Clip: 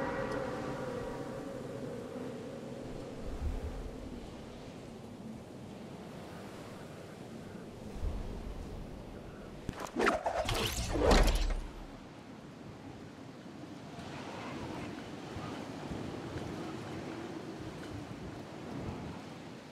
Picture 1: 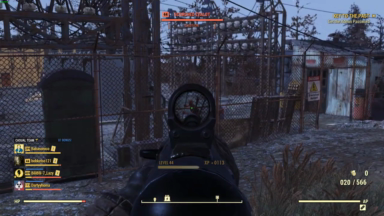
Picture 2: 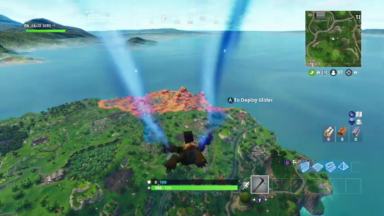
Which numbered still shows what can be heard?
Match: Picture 2